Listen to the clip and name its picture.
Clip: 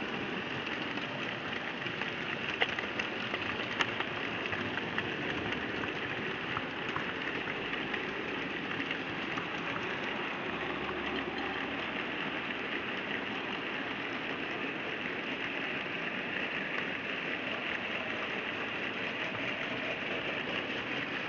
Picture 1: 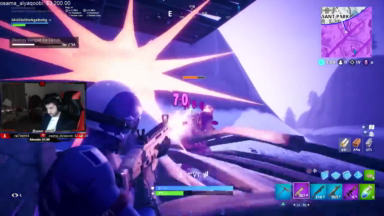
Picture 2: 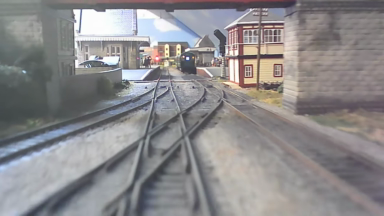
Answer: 2